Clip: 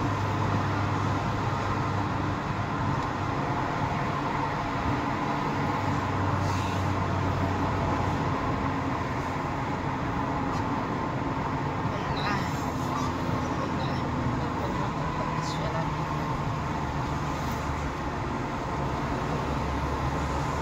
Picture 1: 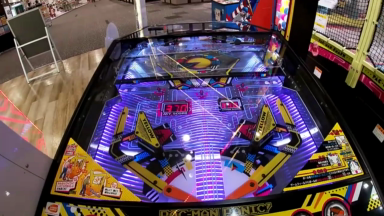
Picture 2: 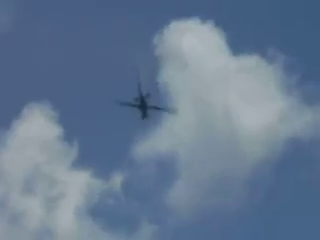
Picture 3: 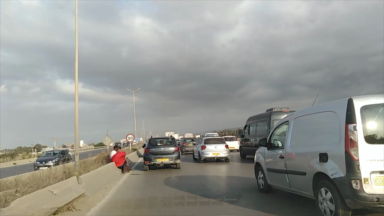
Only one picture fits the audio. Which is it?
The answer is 3